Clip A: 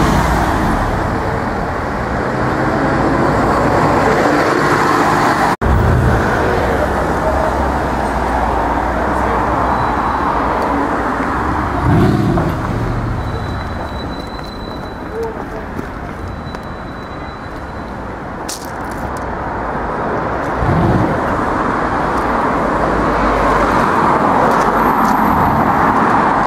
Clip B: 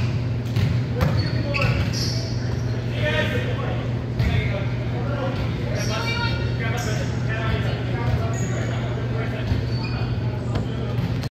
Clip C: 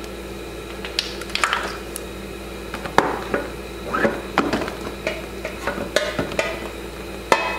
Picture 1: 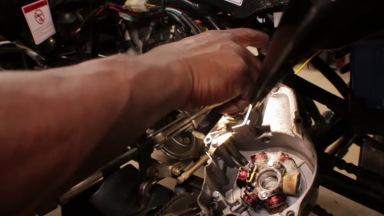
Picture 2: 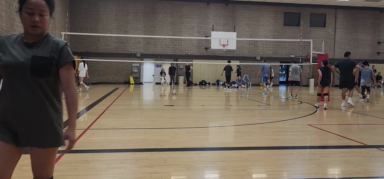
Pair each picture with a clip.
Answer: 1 C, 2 B